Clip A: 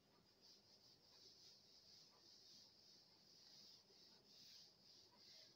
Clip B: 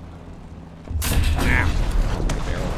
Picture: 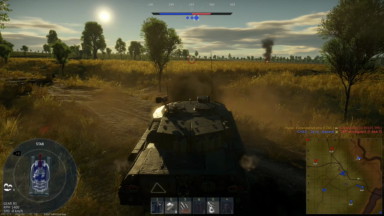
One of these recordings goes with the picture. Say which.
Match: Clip B